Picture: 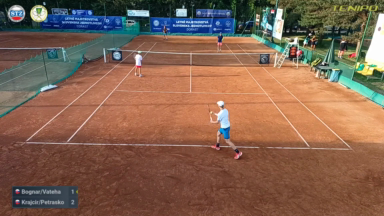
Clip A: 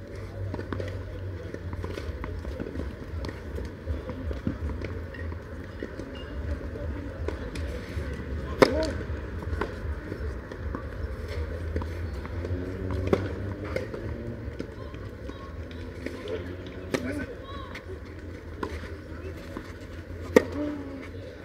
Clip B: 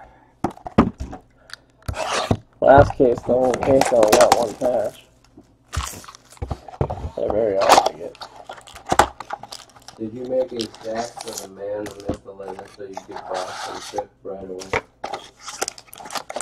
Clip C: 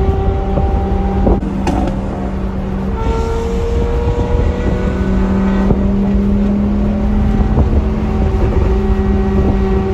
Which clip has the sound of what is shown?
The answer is A